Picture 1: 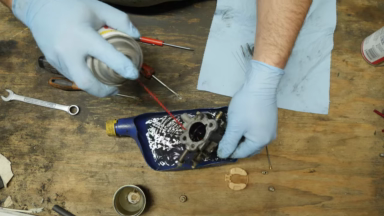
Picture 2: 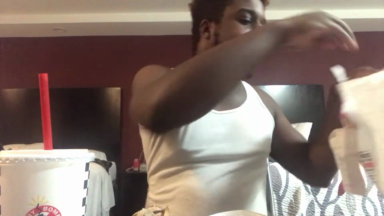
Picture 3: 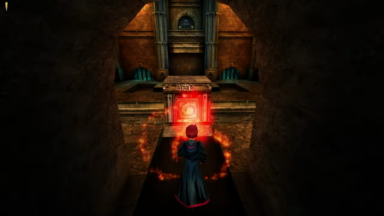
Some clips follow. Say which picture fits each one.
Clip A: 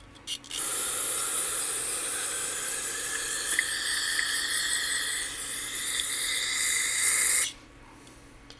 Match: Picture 1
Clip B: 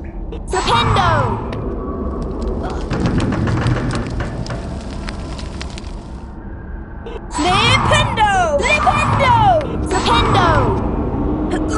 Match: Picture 3